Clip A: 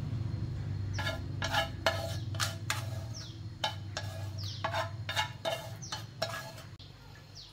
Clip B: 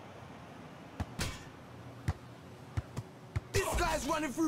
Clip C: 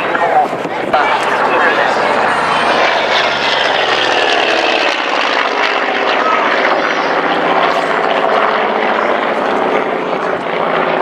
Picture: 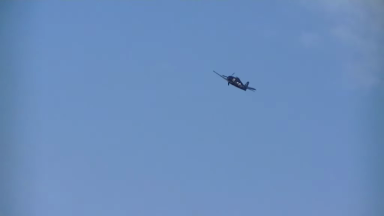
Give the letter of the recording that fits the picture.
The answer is C